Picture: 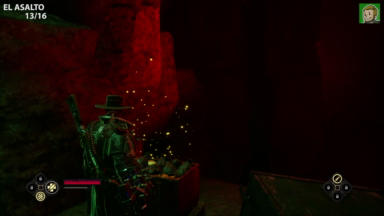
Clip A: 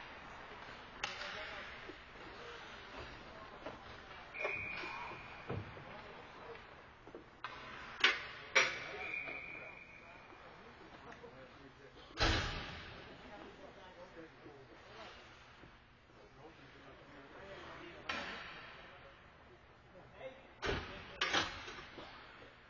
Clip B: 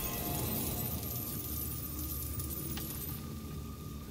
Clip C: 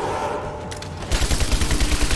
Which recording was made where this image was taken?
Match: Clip B